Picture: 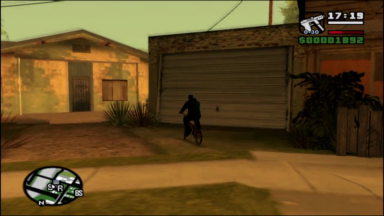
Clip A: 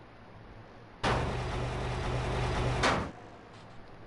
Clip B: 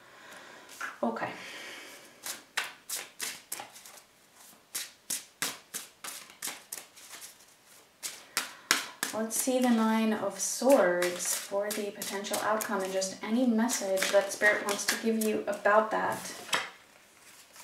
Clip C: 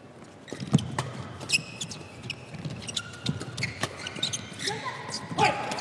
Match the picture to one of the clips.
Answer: A